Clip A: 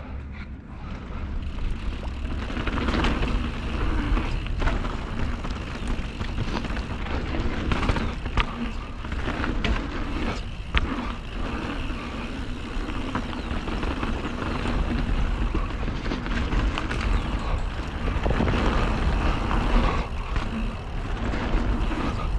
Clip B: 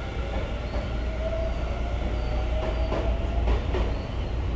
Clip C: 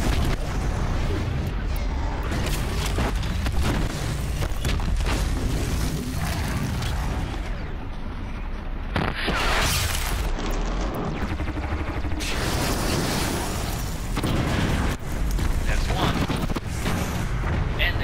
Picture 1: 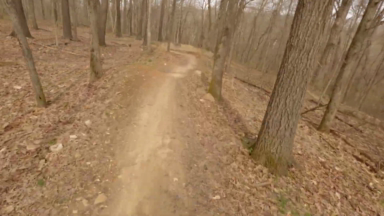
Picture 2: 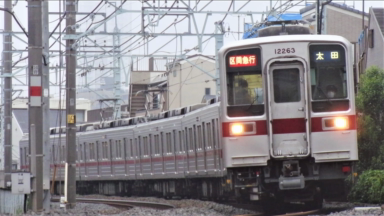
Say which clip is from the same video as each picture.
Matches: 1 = A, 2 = B